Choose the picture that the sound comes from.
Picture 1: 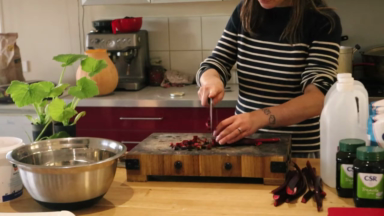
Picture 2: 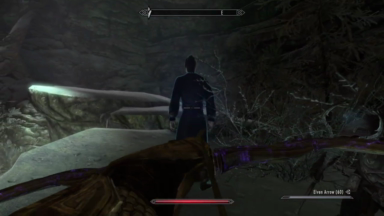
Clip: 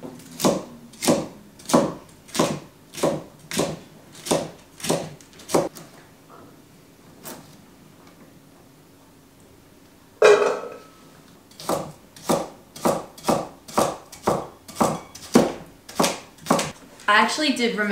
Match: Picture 1